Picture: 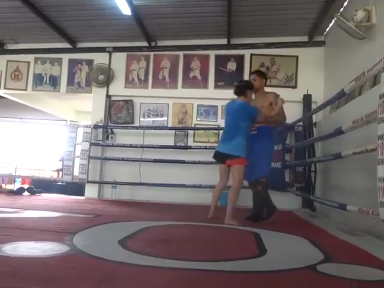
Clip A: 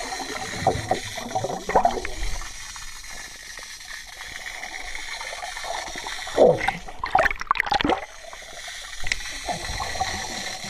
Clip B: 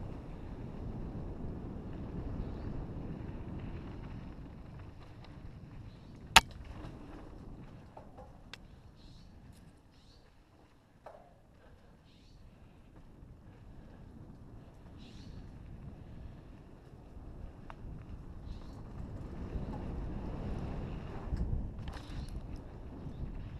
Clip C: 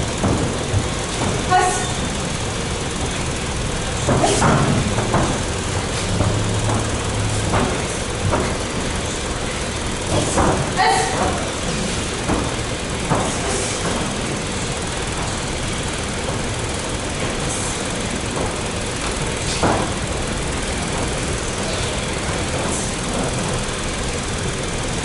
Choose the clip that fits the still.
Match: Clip C